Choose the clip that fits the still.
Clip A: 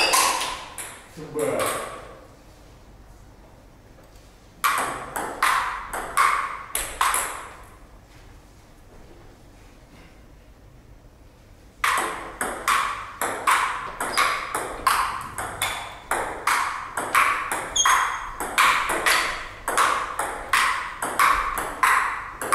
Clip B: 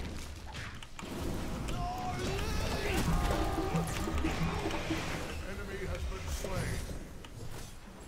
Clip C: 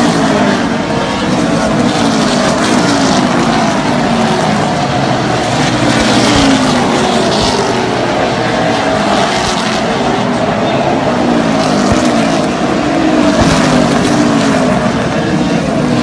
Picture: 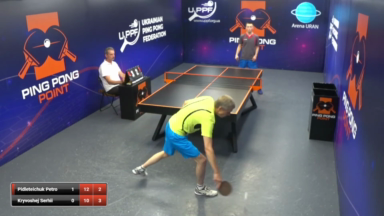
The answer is A